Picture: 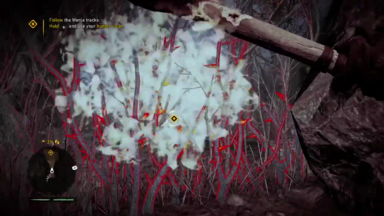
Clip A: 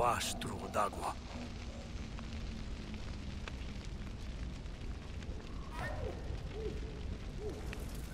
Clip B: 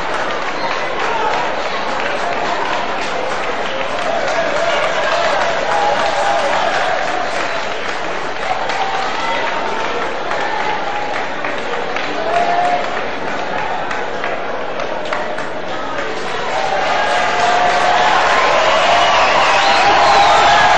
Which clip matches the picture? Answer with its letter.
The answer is A